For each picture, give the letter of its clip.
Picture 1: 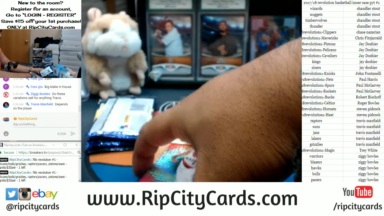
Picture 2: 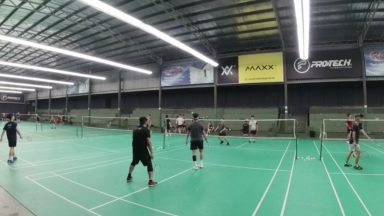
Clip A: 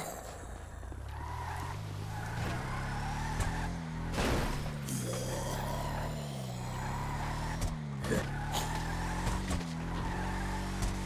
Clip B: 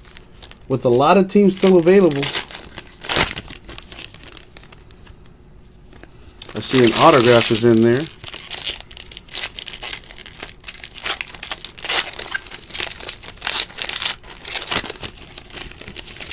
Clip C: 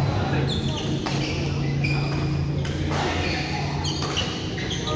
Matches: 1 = B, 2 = C